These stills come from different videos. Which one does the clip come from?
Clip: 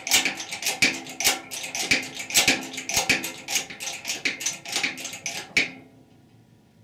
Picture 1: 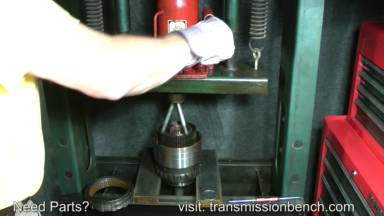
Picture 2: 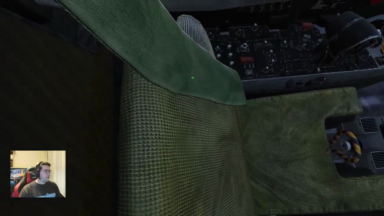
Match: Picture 1